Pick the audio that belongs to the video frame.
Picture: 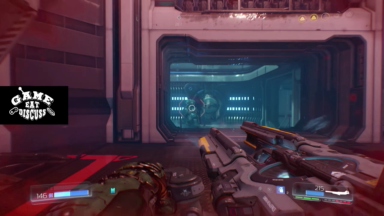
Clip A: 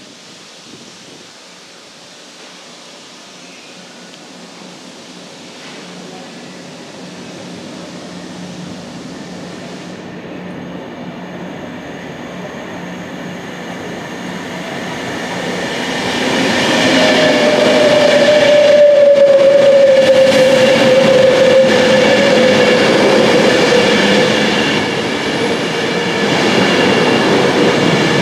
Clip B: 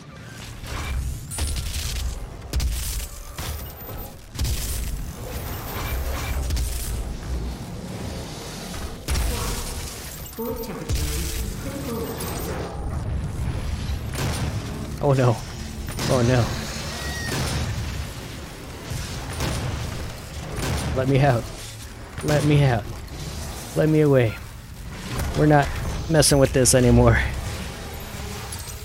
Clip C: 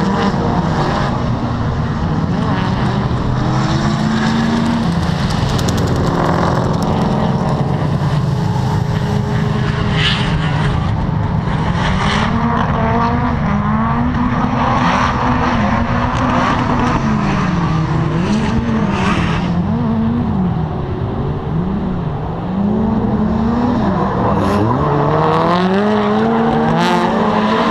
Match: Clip B